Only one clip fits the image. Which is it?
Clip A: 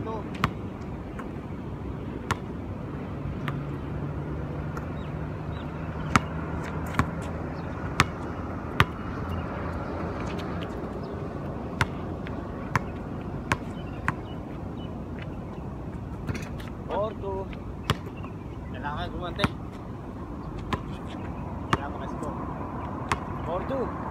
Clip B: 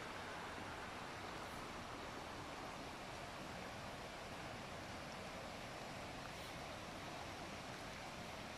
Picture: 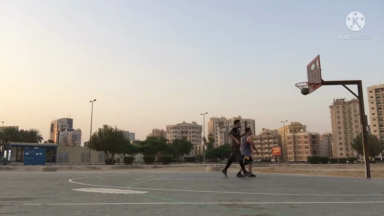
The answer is A